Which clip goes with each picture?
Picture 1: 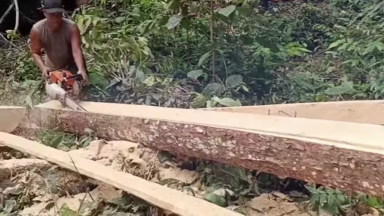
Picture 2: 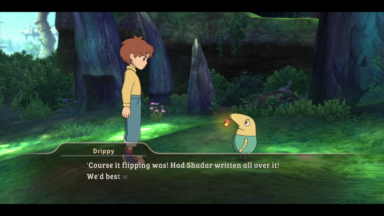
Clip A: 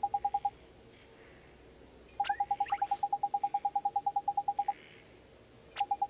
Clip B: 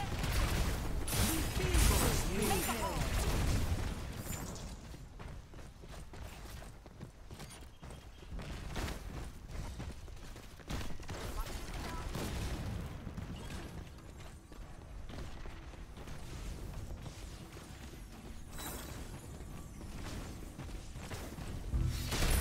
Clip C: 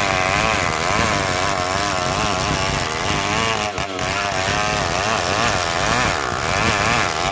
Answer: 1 C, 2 A